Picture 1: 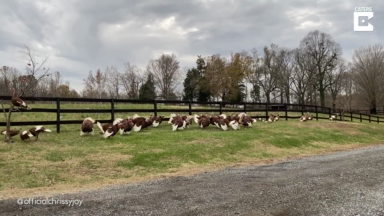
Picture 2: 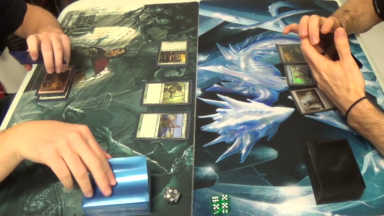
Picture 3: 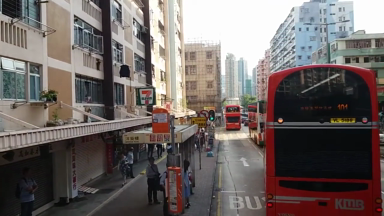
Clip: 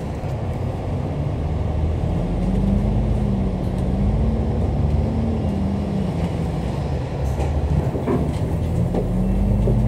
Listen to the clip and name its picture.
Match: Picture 3